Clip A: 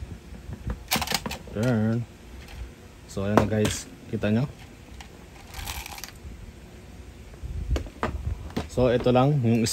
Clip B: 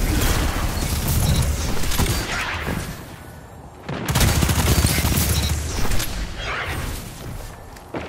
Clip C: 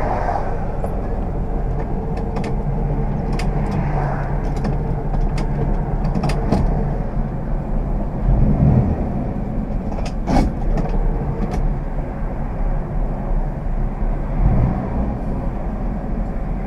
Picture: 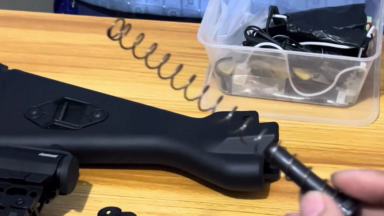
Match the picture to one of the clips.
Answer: A